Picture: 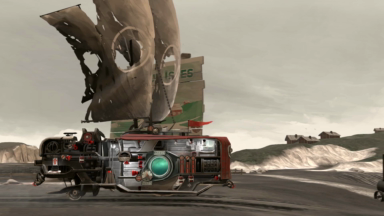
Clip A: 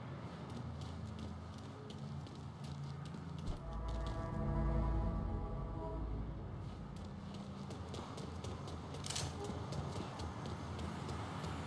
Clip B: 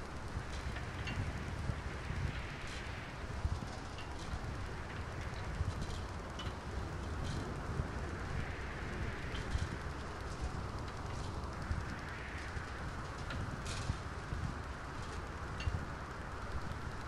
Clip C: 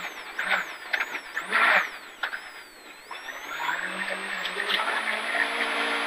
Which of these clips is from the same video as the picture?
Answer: B